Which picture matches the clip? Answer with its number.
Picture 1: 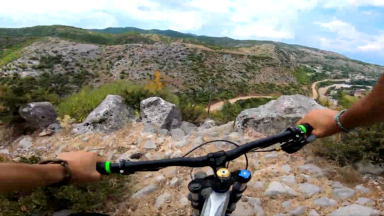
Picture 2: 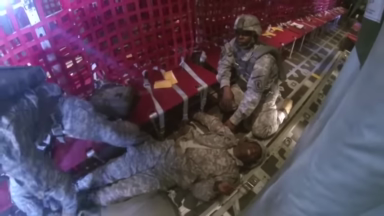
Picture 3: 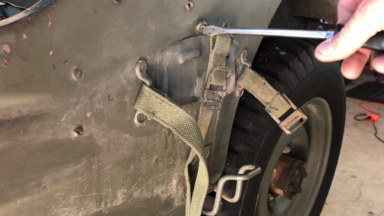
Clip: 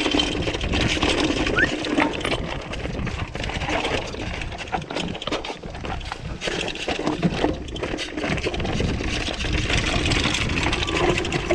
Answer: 1